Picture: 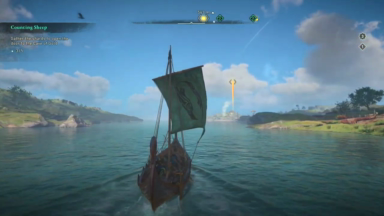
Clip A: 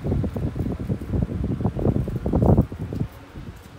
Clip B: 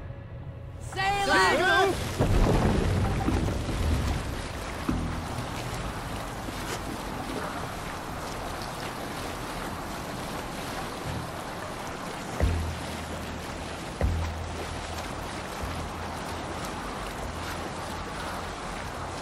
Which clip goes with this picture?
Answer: B